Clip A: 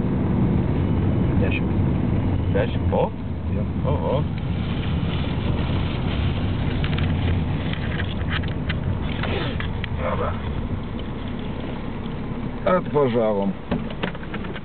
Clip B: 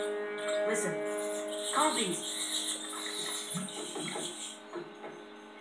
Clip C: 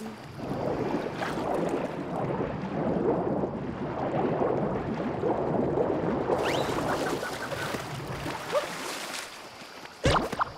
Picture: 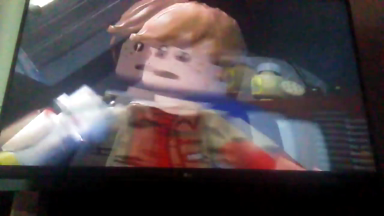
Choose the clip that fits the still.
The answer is B